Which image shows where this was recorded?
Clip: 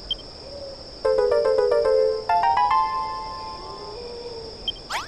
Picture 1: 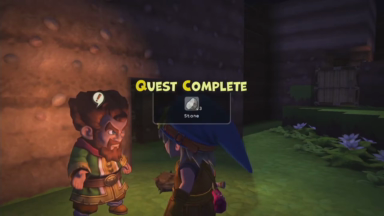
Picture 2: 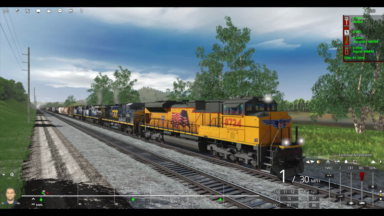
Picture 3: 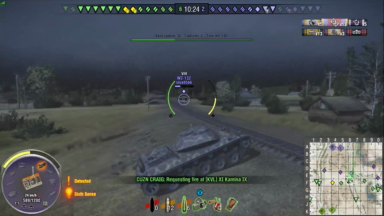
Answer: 1